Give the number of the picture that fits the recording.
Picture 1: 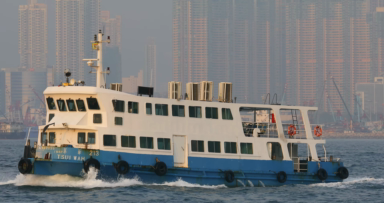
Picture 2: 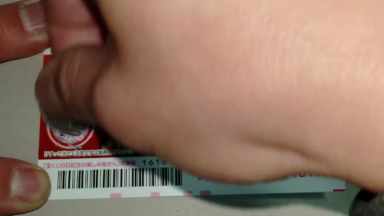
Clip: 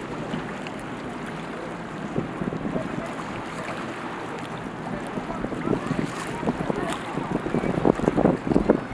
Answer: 1